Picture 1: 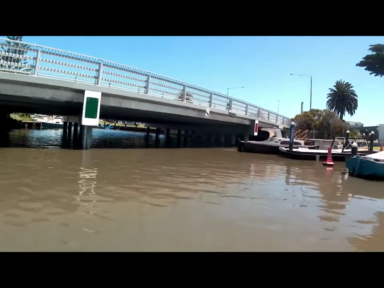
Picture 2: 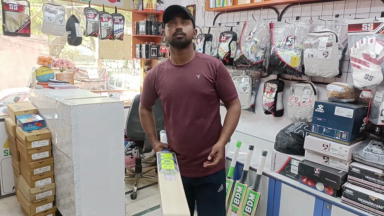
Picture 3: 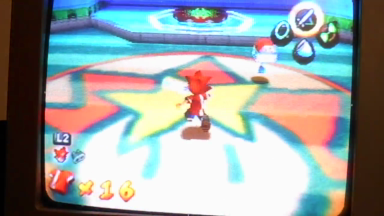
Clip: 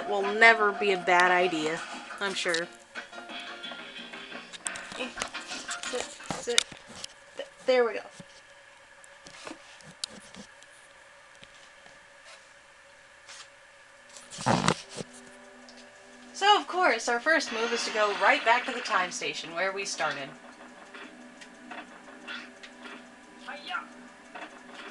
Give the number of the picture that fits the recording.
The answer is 3